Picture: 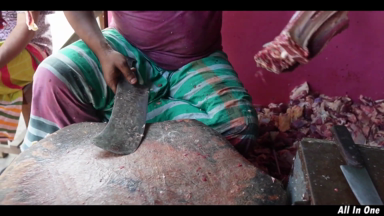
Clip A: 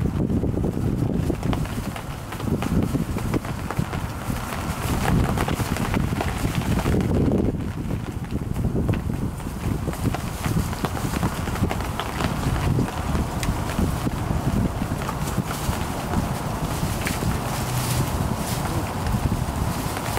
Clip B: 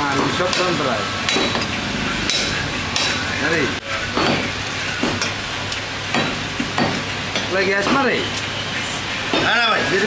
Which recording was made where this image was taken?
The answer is B